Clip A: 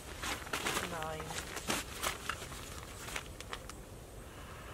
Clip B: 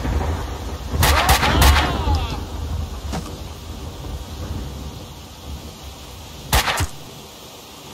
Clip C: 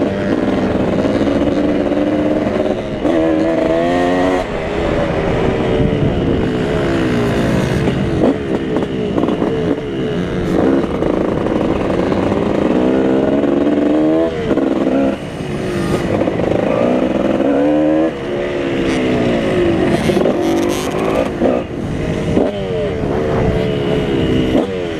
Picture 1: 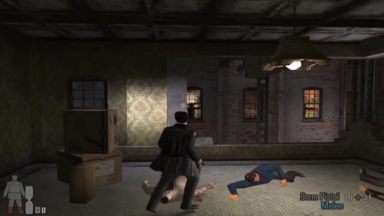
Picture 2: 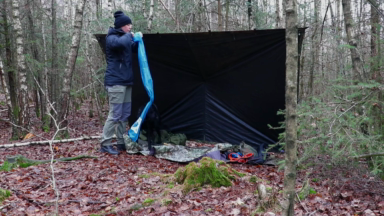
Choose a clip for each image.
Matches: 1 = B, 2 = A